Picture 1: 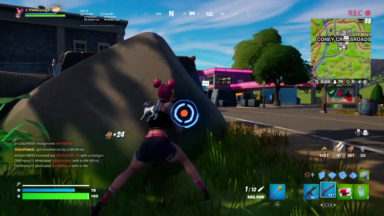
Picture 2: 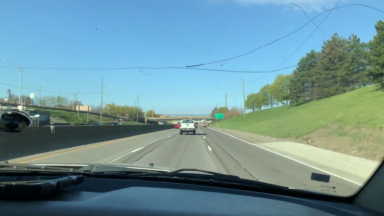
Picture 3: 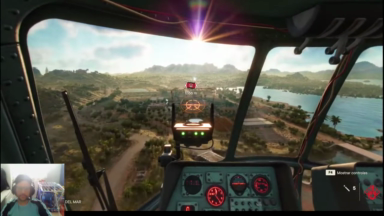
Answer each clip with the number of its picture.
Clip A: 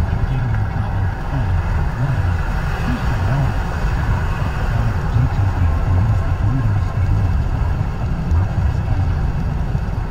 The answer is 2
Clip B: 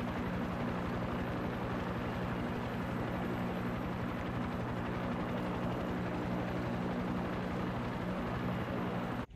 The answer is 3